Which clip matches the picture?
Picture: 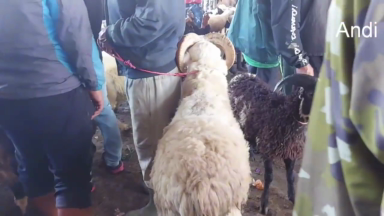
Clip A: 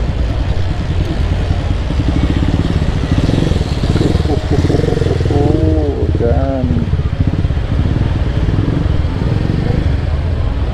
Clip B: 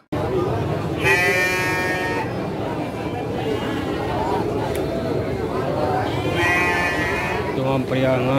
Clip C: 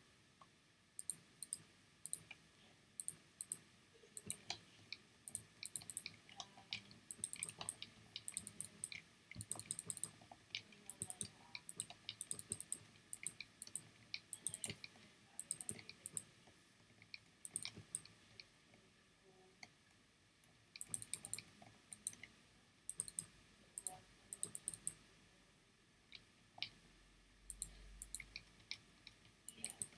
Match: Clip B